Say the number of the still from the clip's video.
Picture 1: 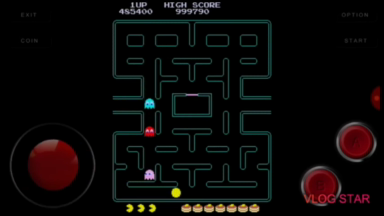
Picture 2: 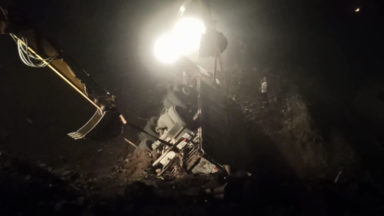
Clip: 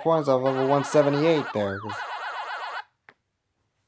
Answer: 1